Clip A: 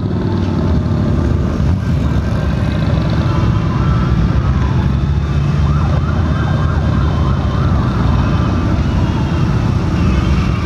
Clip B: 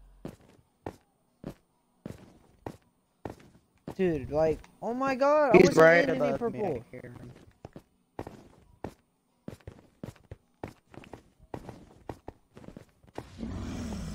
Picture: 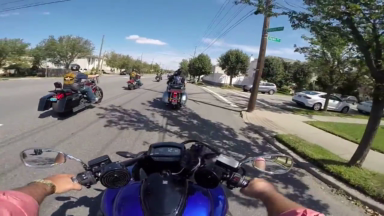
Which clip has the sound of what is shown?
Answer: A